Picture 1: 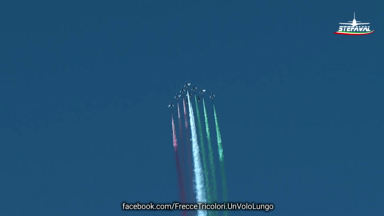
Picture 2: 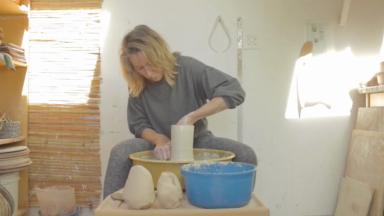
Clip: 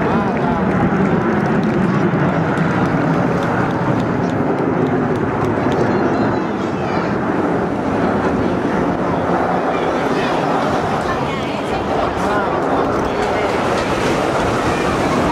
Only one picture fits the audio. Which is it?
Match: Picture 1